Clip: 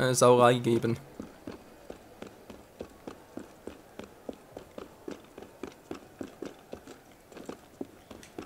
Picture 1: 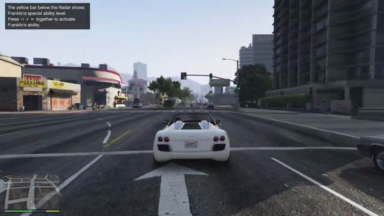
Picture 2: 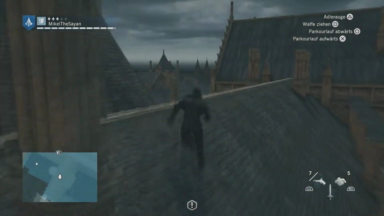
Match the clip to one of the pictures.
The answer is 2